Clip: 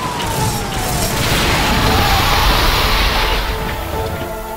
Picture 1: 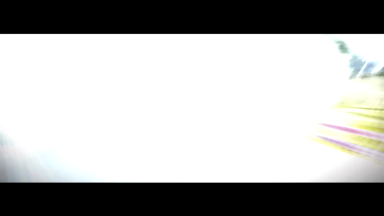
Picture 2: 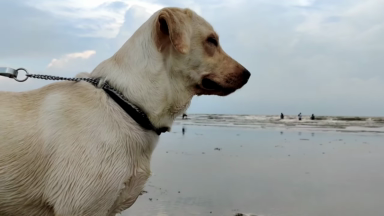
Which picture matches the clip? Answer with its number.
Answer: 1